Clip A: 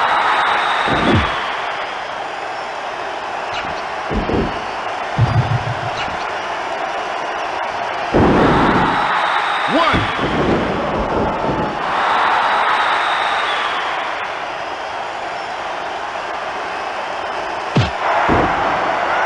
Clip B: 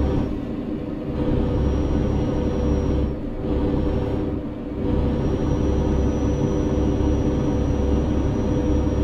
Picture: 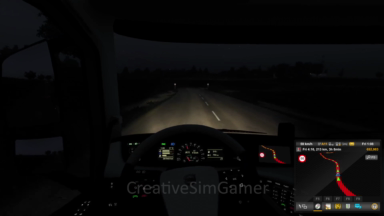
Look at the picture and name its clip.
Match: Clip B